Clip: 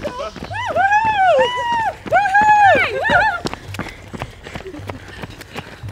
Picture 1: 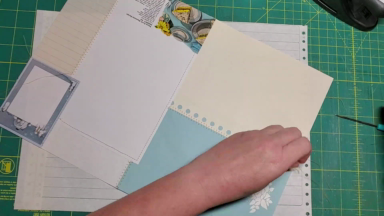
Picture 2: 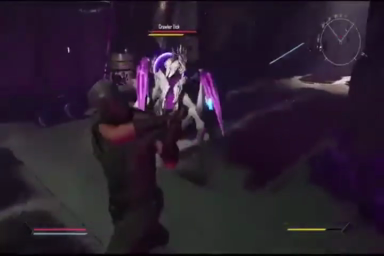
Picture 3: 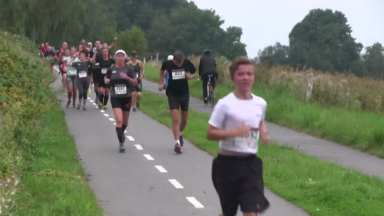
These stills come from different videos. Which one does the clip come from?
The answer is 3